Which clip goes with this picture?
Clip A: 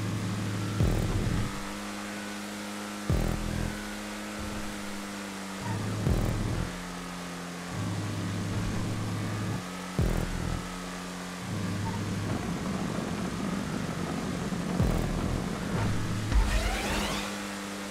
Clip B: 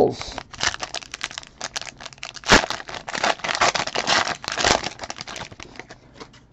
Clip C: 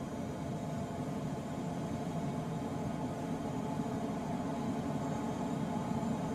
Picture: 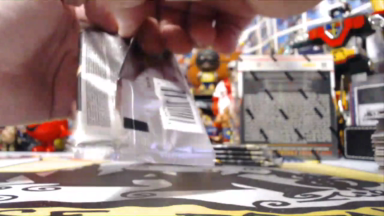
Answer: B